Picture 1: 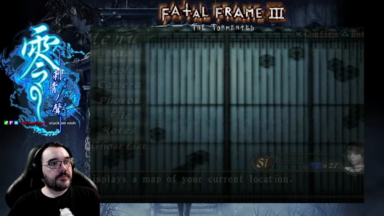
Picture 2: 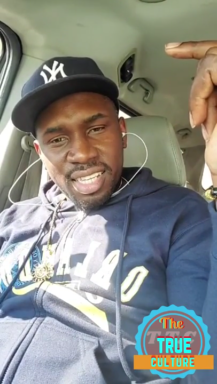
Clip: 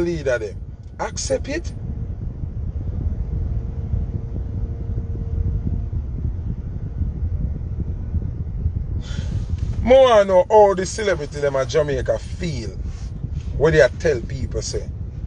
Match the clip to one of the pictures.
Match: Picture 2